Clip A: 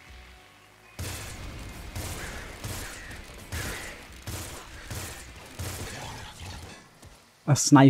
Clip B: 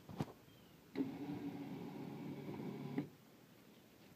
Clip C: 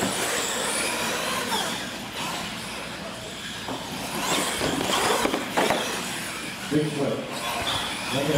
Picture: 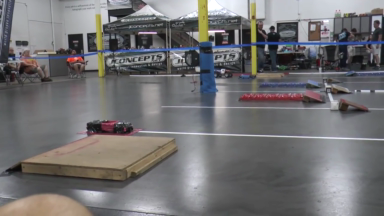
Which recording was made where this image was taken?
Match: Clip C